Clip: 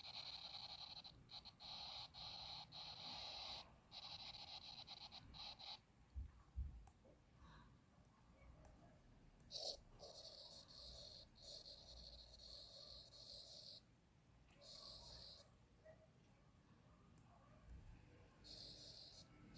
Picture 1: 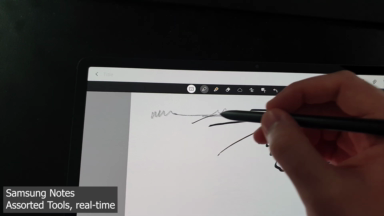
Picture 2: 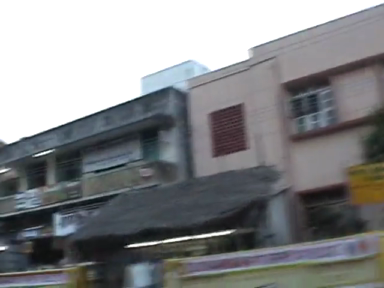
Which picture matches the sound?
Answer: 1